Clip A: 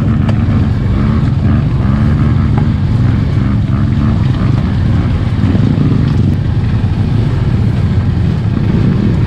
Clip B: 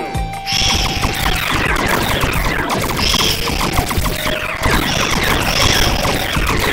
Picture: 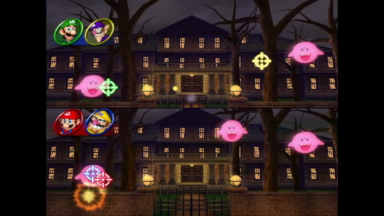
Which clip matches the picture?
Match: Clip B